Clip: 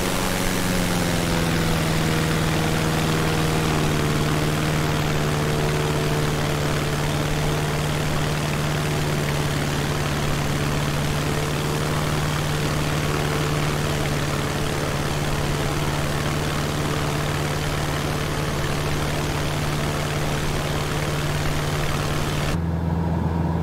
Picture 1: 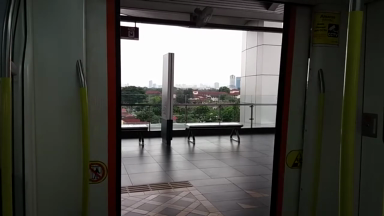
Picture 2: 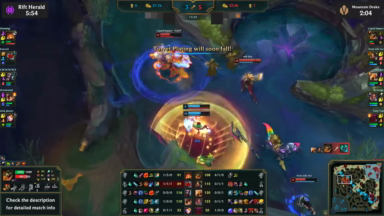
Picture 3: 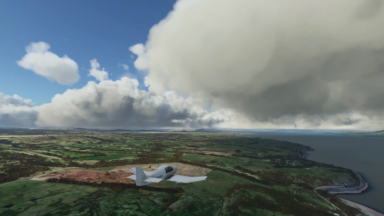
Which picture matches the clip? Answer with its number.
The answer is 3